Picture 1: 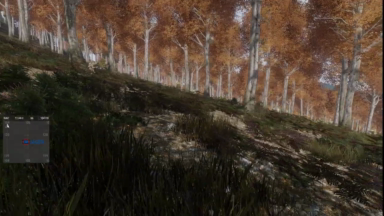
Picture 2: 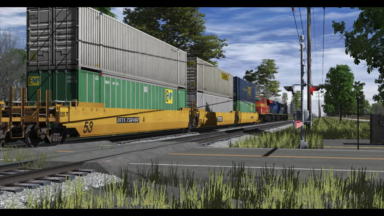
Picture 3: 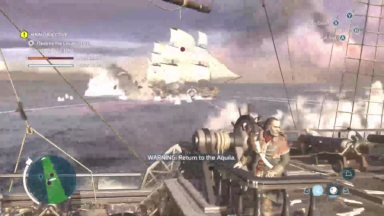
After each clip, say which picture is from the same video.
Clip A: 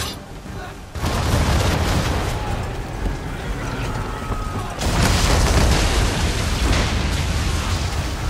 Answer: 3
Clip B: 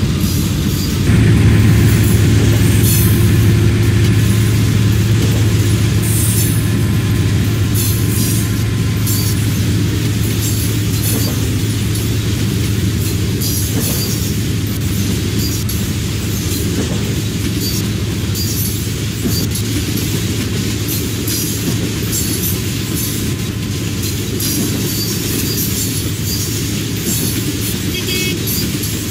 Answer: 2